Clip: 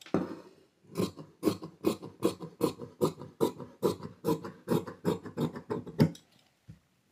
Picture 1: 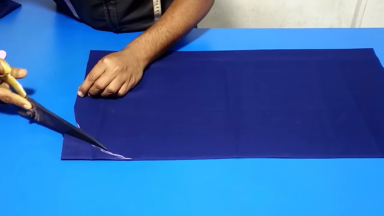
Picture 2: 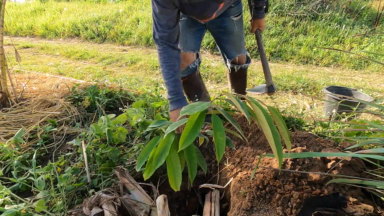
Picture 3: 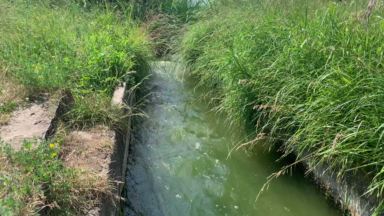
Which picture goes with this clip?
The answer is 1